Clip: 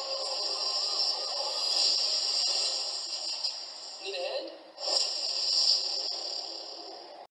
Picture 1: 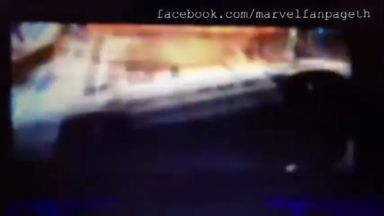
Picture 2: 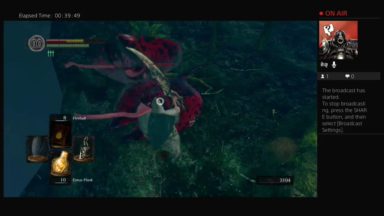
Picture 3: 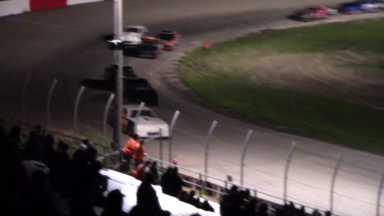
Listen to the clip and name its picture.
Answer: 1